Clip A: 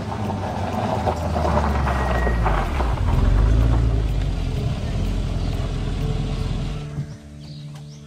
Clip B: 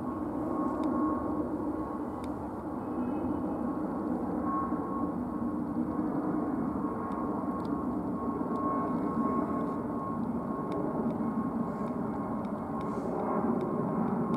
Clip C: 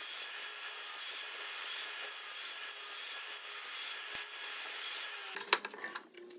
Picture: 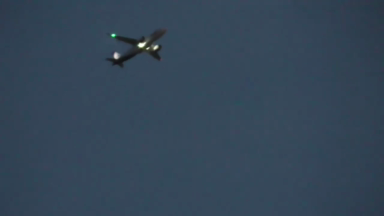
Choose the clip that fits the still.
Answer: B